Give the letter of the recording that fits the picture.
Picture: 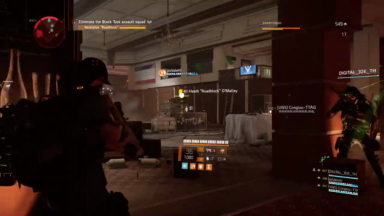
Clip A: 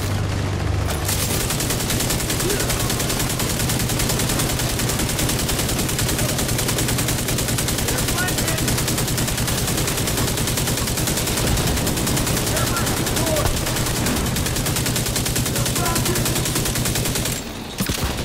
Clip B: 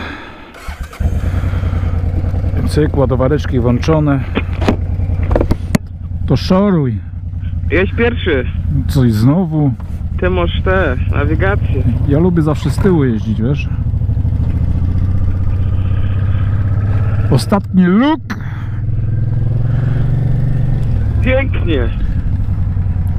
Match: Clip A